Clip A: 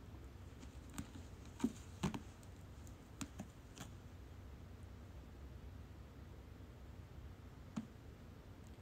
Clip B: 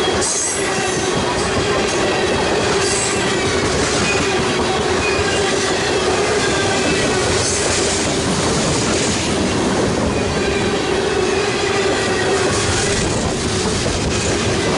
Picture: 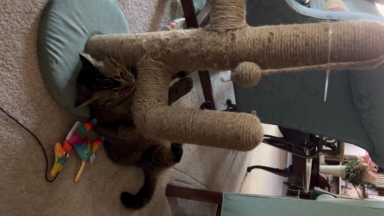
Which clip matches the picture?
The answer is A